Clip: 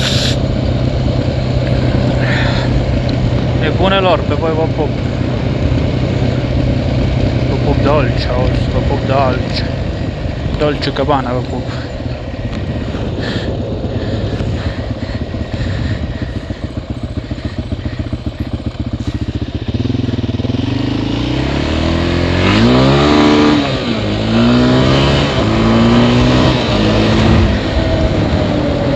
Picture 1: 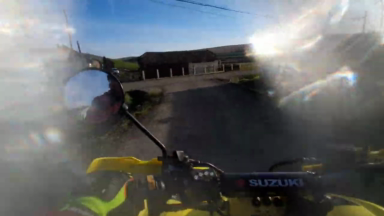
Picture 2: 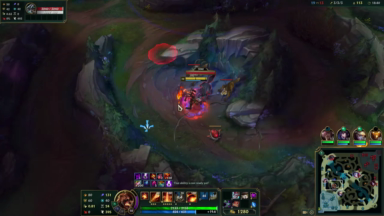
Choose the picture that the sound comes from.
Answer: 1